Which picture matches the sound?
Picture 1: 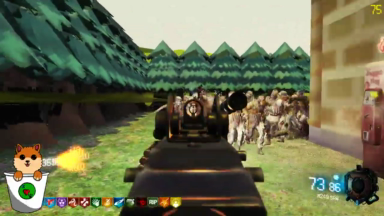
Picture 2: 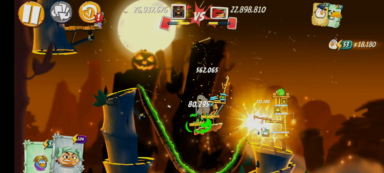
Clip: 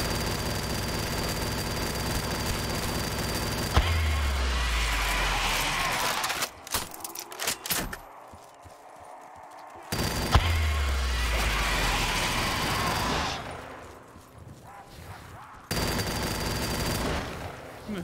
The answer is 1